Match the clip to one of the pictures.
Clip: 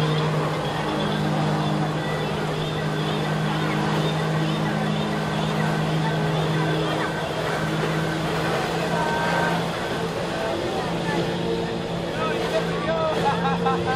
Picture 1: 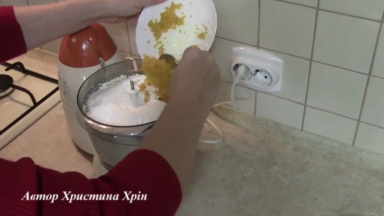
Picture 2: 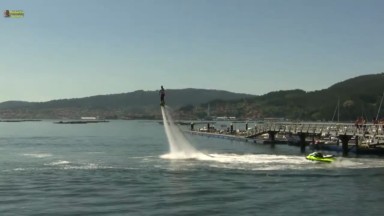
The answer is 2